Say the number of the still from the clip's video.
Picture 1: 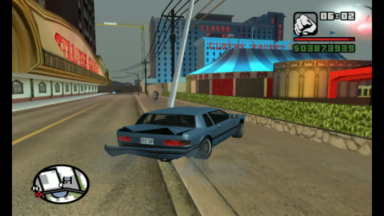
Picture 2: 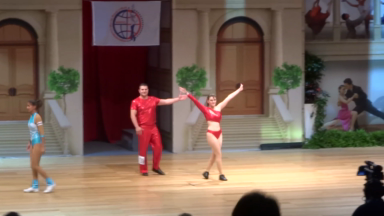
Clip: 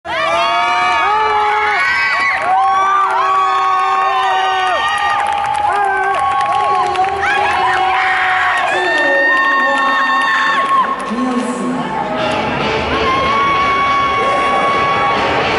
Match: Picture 2